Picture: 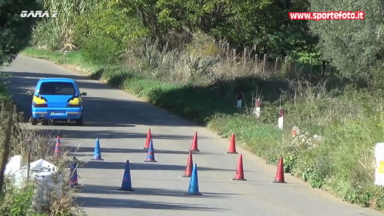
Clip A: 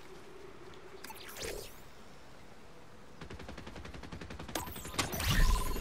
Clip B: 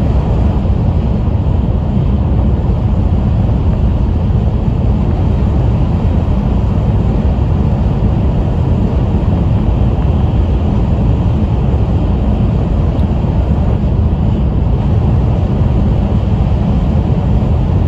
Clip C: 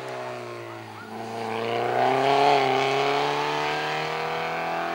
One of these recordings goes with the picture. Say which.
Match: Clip C